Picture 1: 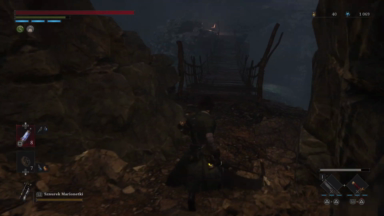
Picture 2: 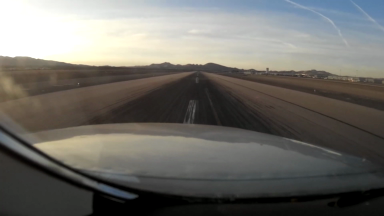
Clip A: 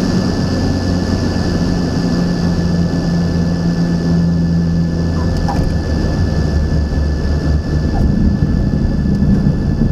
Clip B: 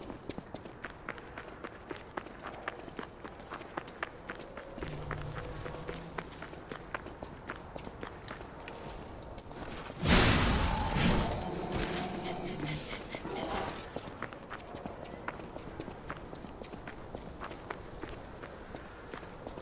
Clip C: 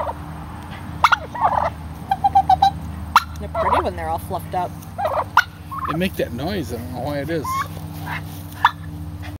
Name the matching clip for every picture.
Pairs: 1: B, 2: A